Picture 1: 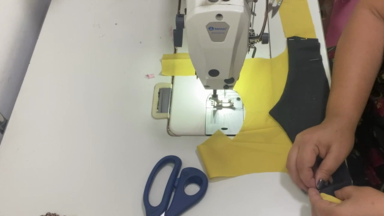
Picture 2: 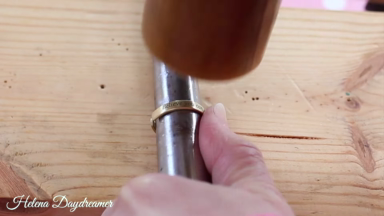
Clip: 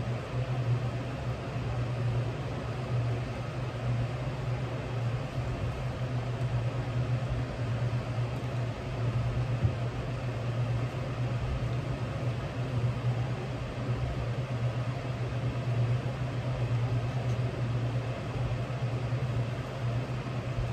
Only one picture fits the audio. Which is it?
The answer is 1